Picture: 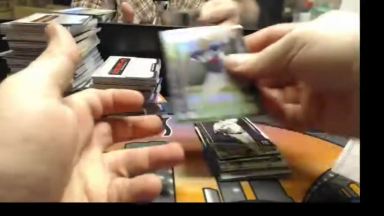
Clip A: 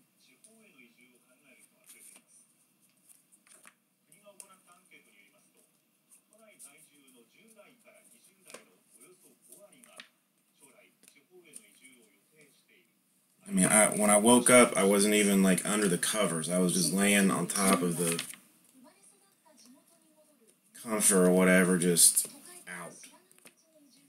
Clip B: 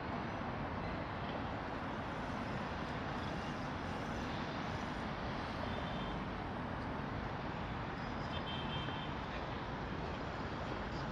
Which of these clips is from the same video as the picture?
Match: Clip A